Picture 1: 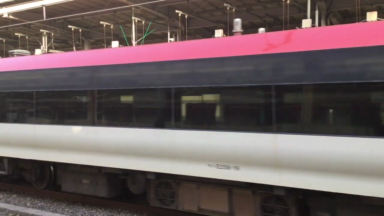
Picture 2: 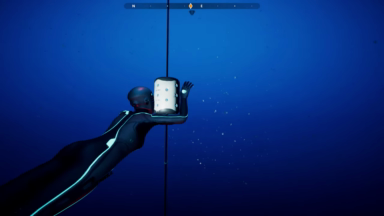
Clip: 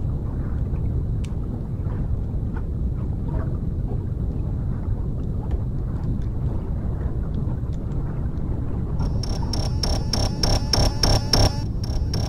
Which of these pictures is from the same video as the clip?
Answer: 2